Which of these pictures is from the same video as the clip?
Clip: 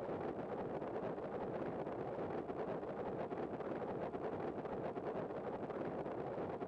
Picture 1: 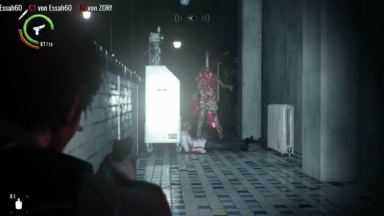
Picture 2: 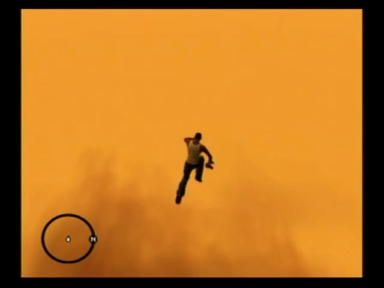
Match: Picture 2